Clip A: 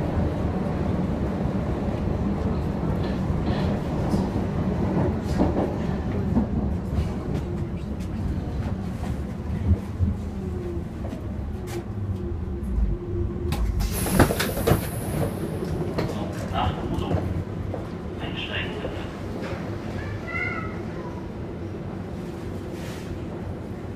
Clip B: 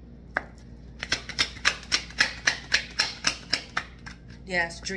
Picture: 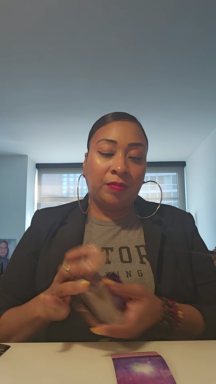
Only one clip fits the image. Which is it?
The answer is B